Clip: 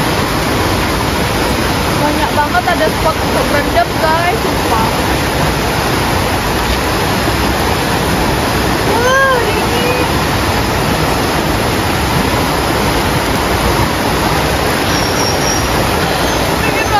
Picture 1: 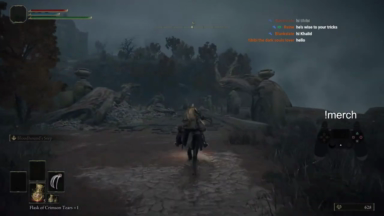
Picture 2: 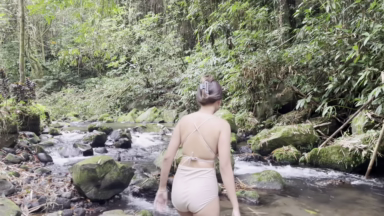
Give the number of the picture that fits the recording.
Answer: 2